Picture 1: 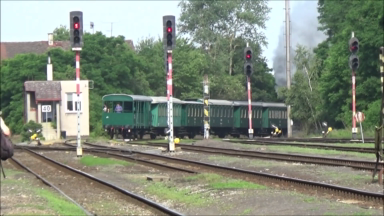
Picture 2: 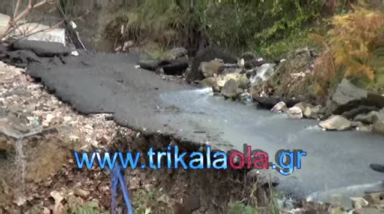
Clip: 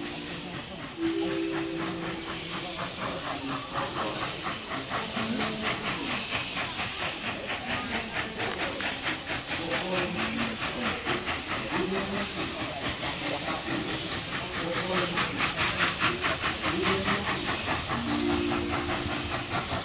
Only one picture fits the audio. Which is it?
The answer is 1